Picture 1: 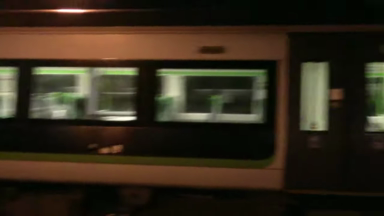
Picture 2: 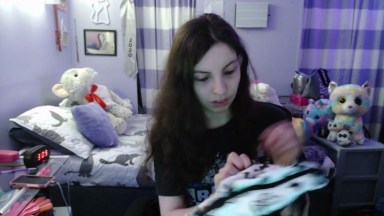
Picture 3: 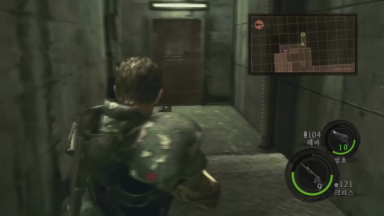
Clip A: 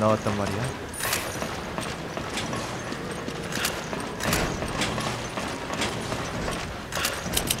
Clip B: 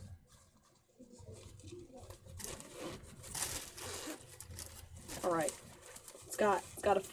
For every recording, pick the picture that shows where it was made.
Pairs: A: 3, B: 2